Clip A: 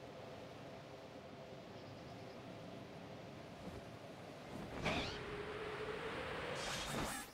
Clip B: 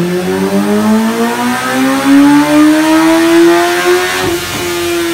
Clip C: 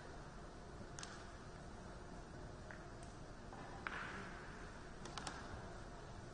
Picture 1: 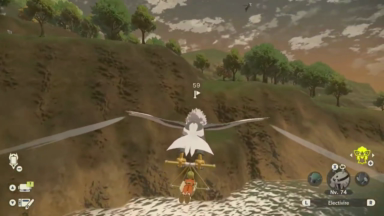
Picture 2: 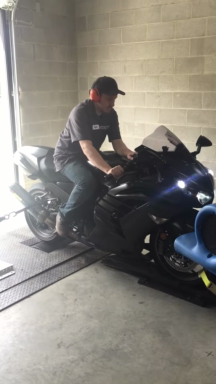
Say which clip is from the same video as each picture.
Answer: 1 A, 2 B